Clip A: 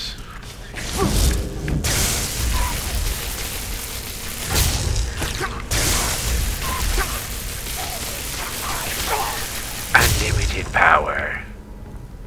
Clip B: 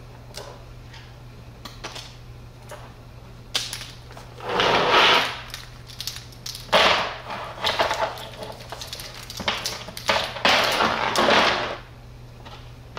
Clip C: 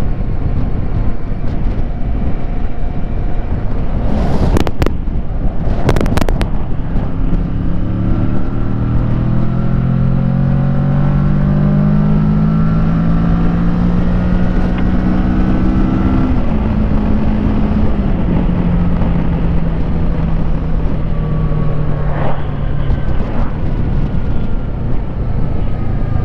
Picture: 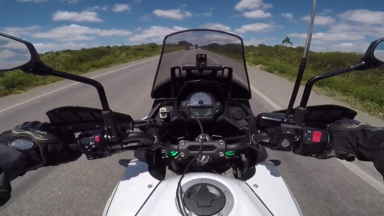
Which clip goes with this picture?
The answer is C